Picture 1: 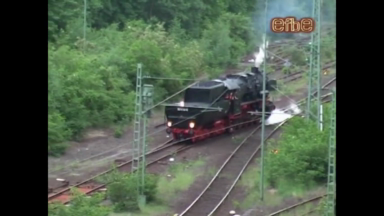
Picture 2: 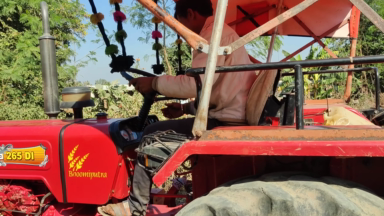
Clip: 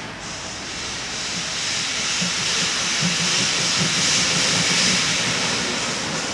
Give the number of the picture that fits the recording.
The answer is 1